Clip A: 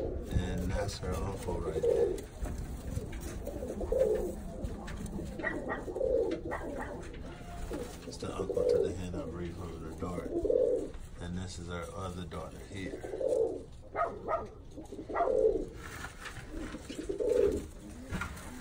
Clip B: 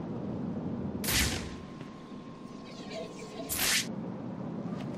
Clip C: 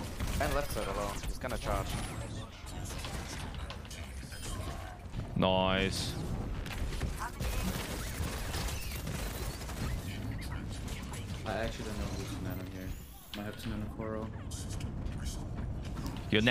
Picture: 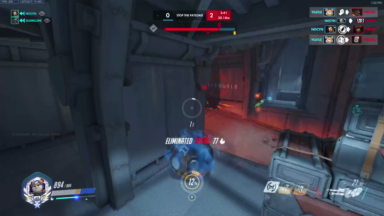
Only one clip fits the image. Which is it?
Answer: C